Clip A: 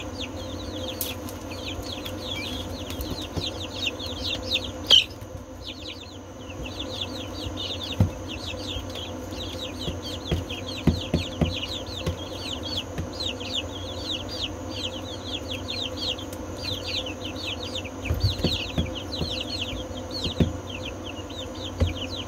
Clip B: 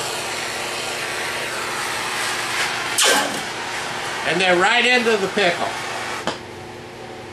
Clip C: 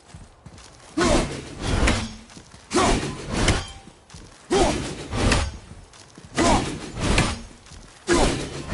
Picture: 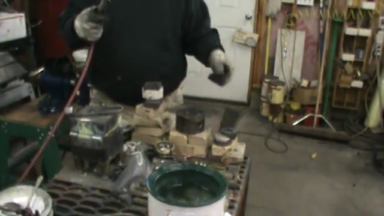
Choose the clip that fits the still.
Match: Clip B